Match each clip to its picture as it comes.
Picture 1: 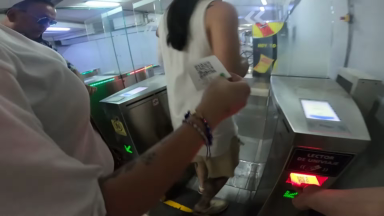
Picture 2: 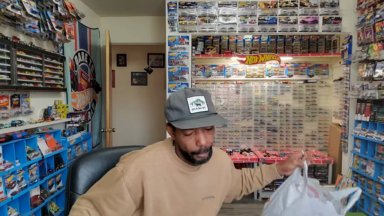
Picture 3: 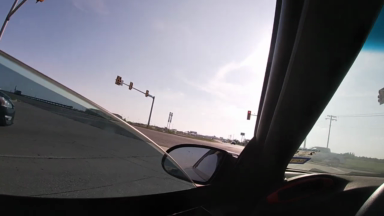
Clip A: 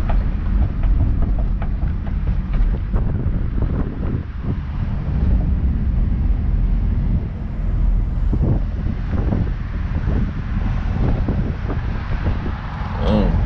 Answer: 3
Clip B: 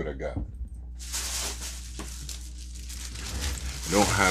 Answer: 2